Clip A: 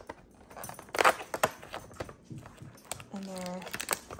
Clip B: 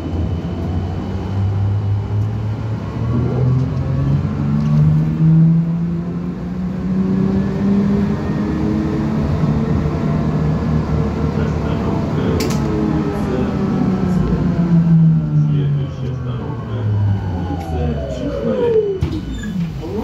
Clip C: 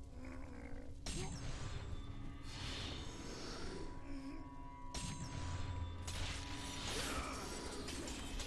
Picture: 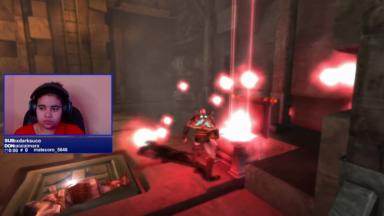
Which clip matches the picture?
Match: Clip C